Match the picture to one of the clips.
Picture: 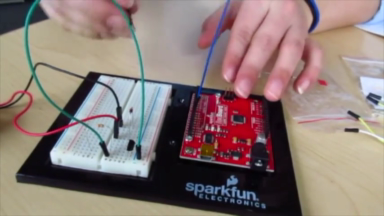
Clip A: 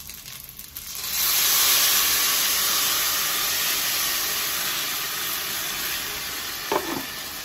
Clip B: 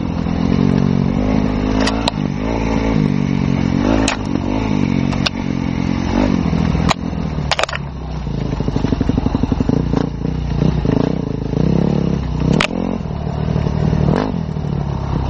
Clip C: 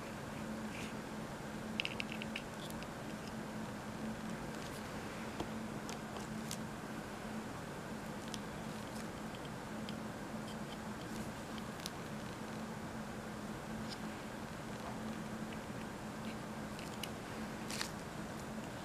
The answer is C